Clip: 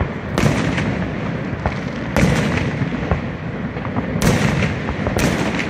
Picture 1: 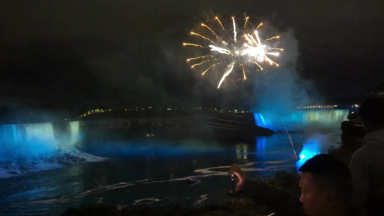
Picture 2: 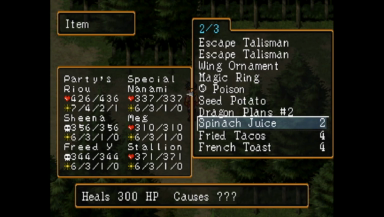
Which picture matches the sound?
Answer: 1